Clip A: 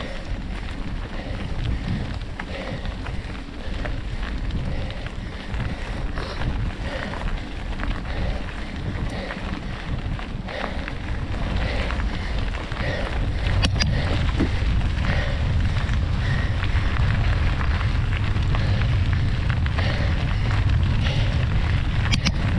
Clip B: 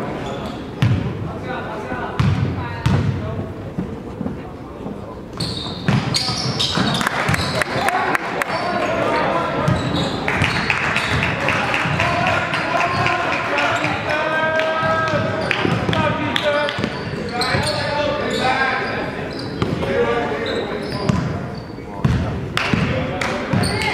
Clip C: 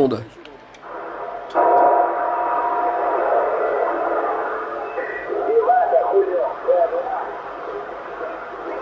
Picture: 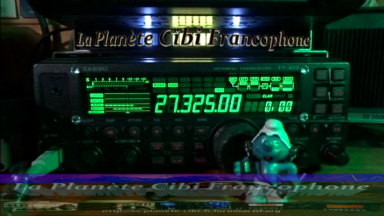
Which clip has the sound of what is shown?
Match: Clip C